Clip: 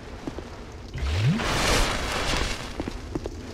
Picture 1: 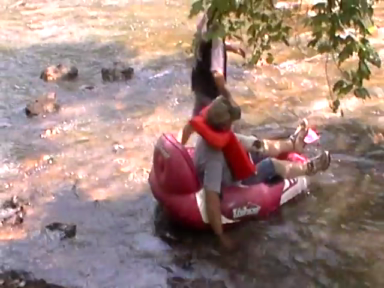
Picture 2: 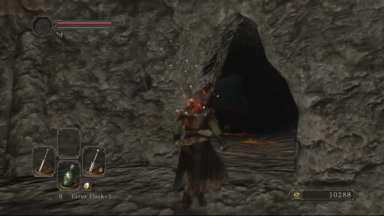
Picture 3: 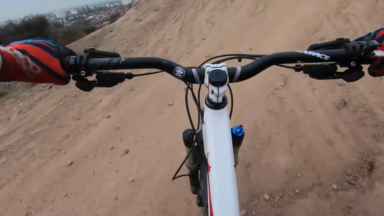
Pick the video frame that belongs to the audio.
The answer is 2